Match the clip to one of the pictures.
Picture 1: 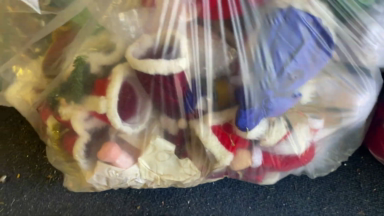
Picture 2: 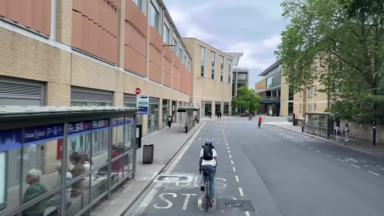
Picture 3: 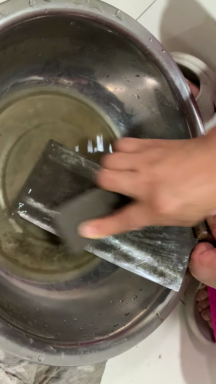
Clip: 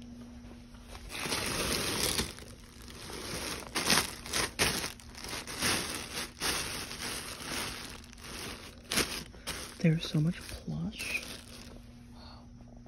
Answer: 1